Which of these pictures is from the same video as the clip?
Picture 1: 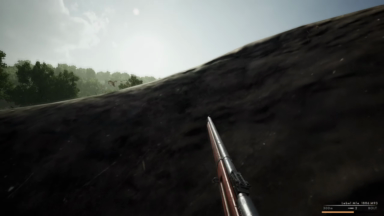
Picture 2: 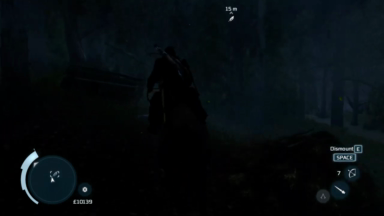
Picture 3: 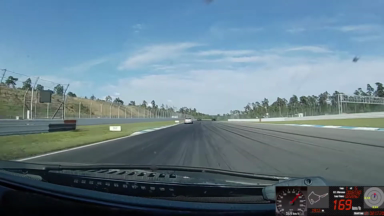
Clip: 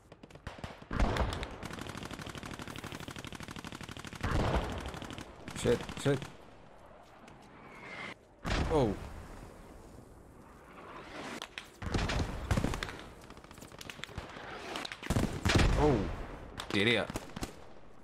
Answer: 1